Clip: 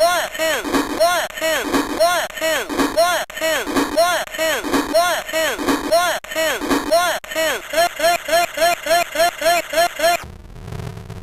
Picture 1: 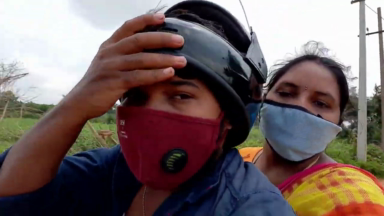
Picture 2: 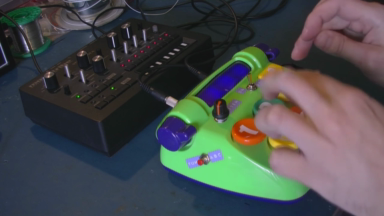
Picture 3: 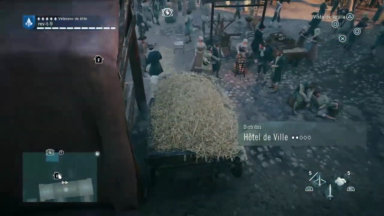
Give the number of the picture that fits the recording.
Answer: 2